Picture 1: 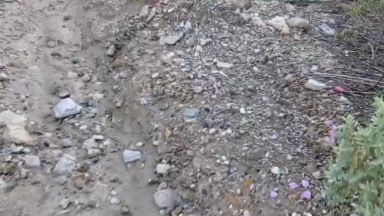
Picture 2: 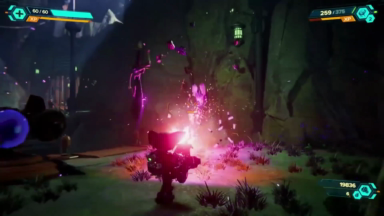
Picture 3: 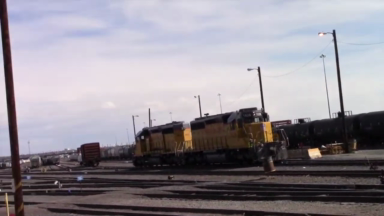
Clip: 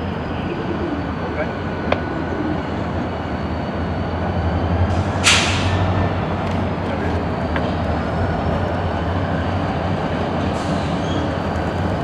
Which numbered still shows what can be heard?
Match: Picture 3